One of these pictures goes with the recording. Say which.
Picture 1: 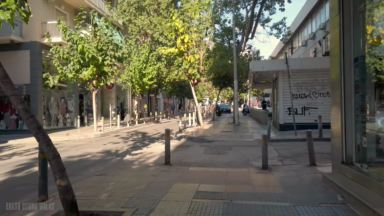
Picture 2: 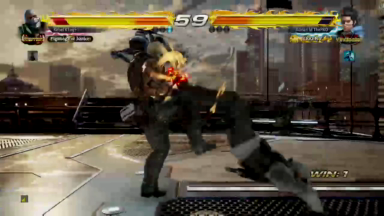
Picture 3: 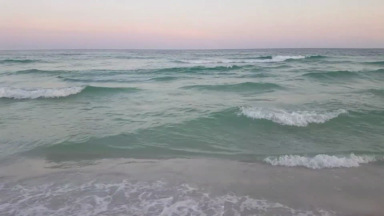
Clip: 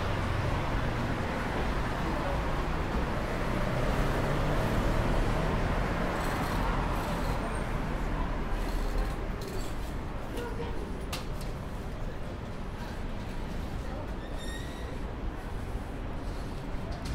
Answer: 1